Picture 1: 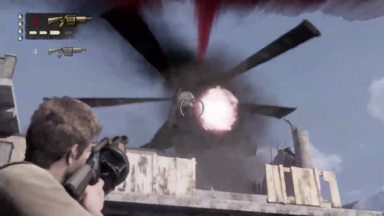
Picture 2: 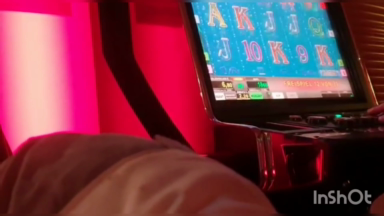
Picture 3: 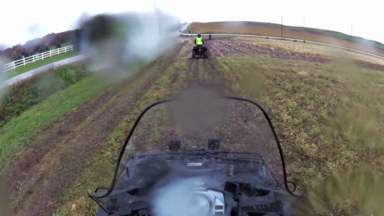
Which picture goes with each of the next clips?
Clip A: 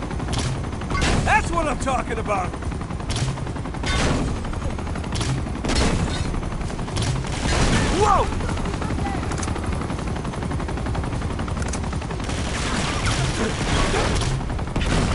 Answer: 1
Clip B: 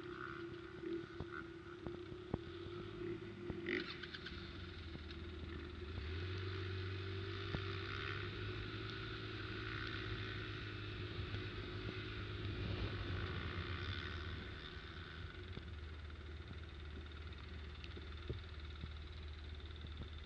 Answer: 3